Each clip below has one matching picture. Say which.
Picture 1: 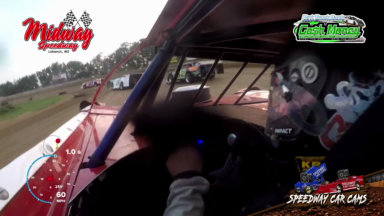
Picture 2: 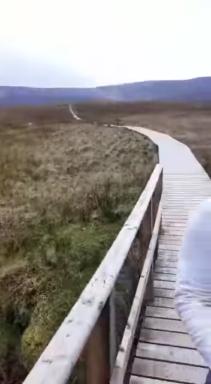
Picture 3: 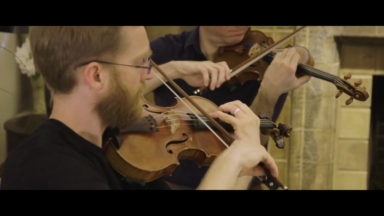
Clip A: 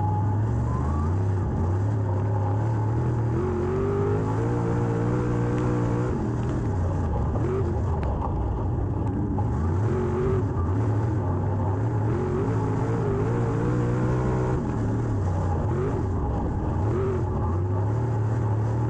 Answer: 1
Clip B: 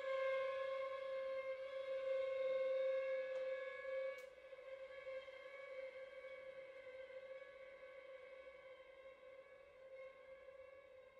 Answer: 3